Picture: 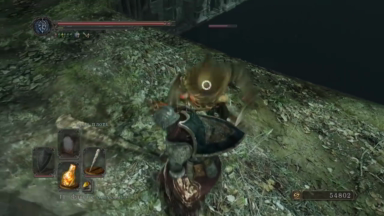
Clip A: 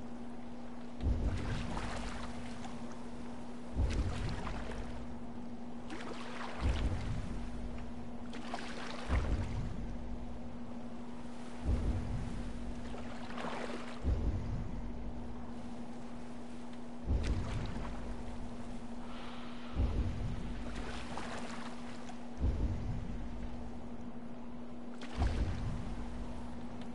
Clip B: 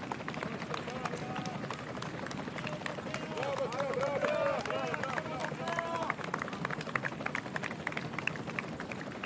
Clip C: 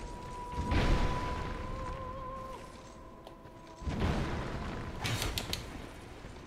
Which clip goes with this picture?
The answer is C